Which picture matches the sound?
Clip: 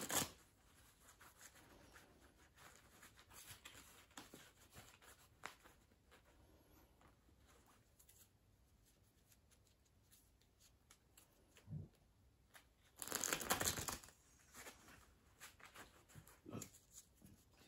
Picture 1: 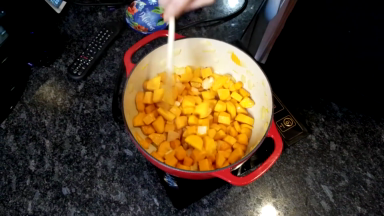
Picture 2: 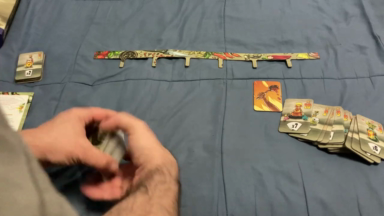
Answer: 2